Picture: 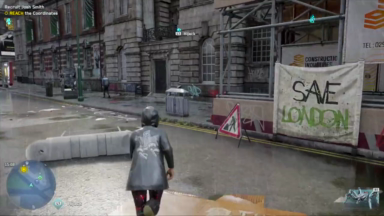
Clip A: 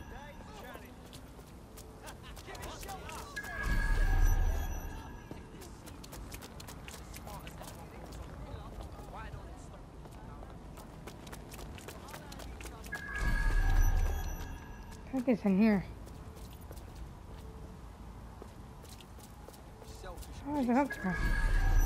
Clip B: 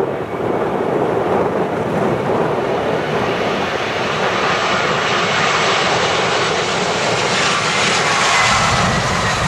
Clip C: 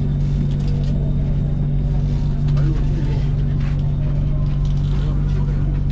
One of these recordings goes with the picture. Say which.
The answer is A